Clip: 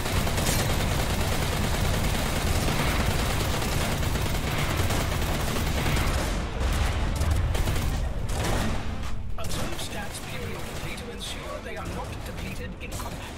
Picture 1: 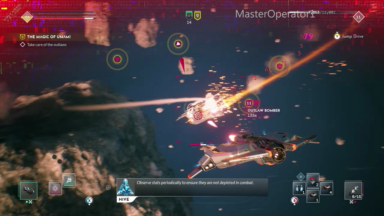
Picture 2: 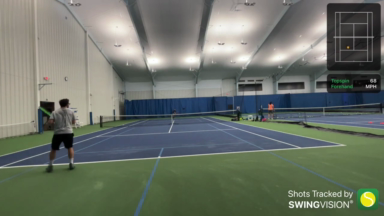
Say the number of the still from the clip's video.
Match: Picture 1